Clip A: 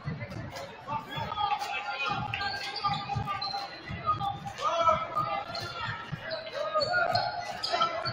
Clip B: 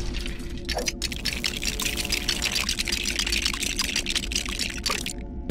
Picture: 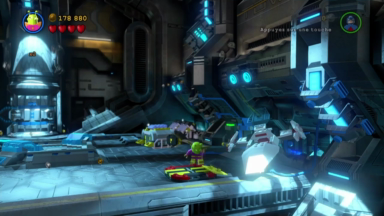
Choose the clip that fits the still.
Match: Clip B